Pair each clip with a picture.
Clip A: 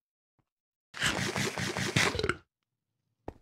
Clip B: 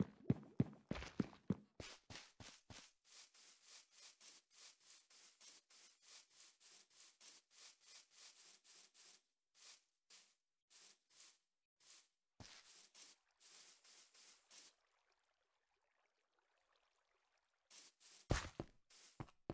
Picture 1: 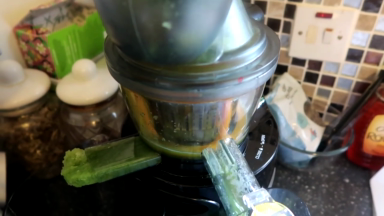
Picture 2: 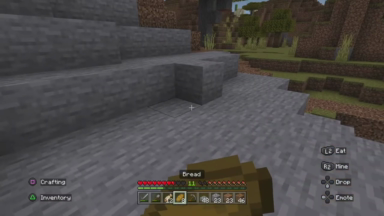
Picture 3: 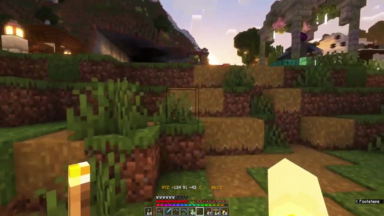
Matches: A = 2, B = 3